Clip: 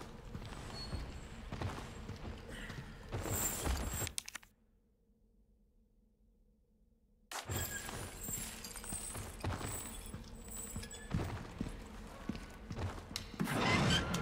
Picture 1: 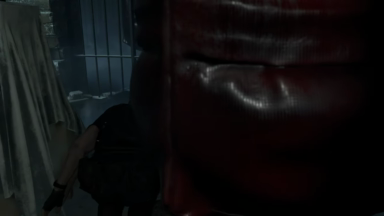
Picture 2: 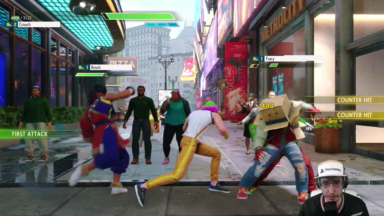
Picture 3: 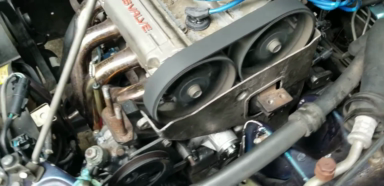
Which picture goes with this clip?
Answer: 1